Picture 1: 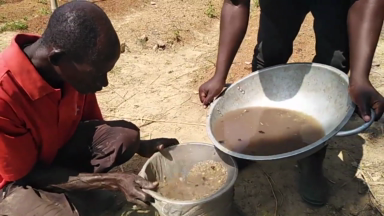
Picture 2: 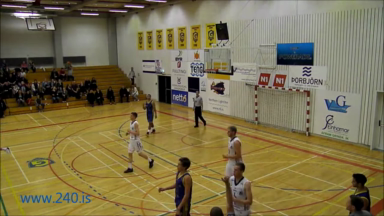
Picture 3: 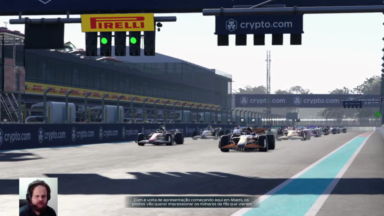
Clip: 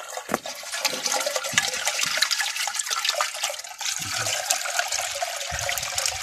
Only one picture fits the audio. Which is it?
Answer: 1